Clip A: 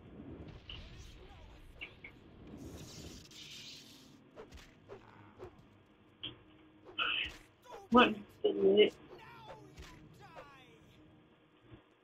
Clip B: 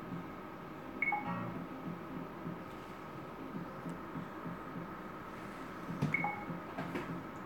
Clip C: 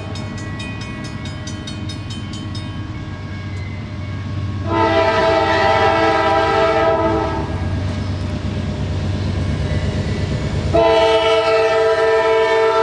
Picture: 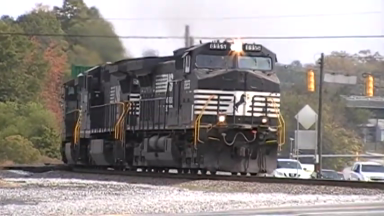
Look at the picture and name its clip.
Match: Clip C